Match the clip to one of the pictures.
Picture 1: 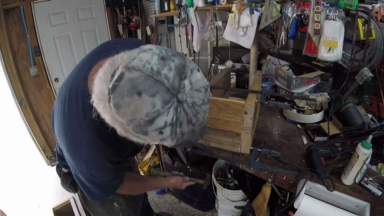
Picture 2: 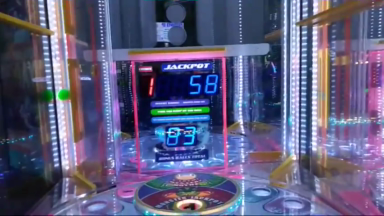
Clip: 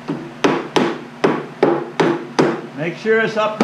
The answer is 1